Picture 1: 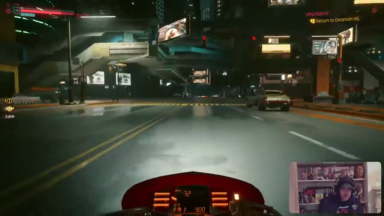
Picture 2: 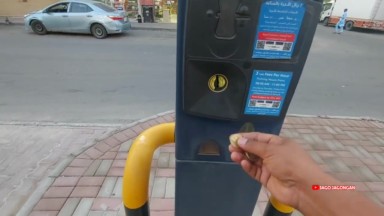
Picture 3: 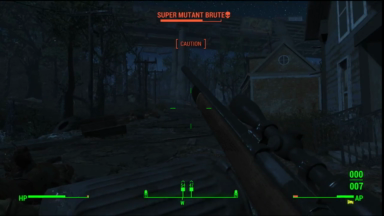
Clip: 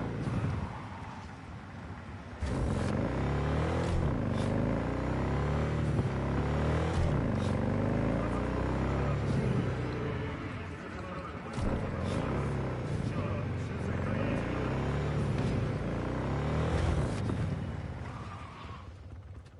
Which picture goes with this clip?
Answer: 1